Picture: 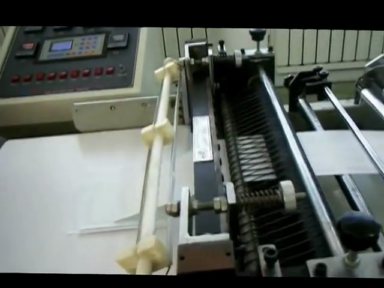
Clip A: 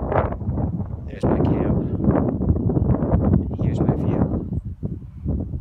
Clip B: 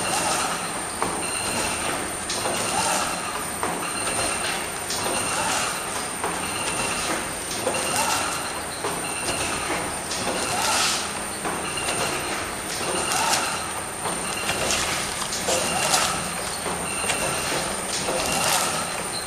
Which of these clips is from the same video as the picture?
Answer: B